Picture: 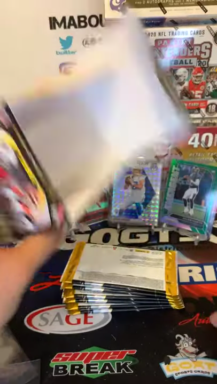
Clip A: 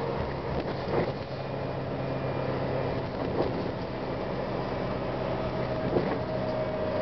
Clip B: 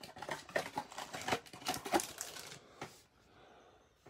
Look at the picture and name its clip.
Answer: B